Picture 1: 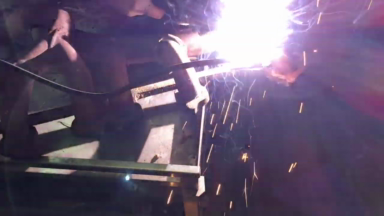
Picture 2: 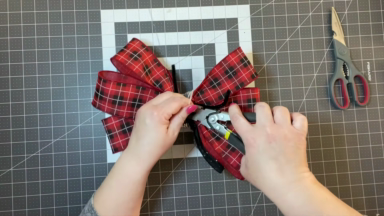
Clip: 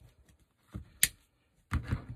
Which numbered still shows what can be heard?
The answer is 2